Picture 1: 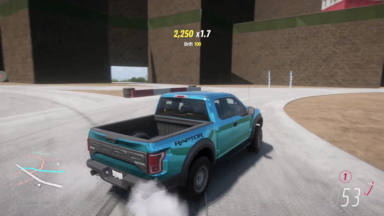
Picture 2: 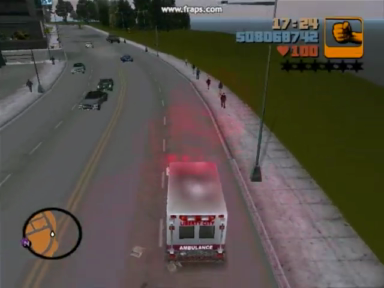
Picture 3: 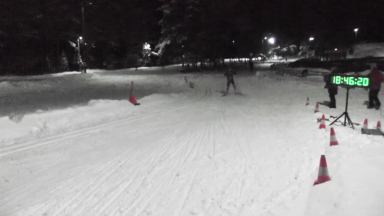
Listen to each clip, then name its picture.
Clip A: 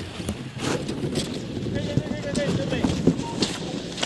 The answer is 3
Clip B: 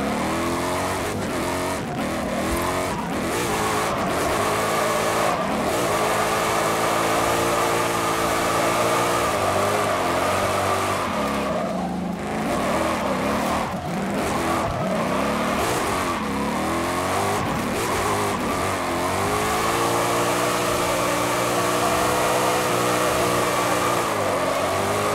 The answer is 1